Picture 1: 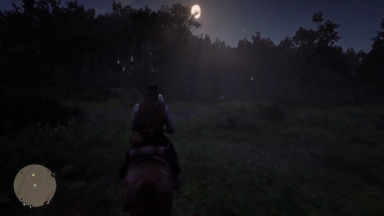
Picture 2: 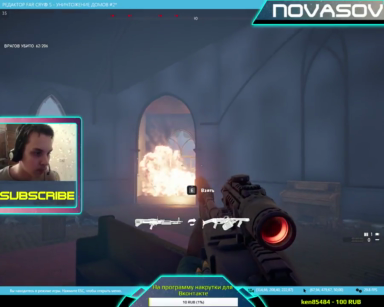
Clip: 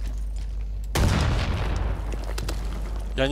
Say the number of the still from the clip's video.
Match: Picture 2